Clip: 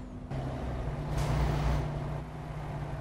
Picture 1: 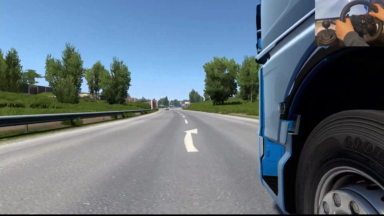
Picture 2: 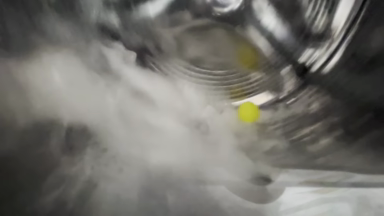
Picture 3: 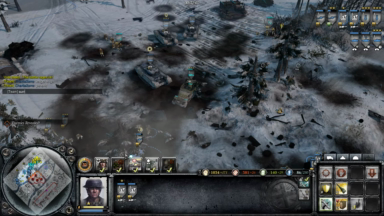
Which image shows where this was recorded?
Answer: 1